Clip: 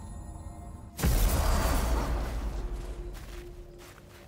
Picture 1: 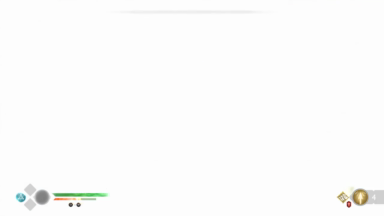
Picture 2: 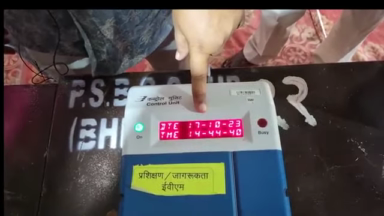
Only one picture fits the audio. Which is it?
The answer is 1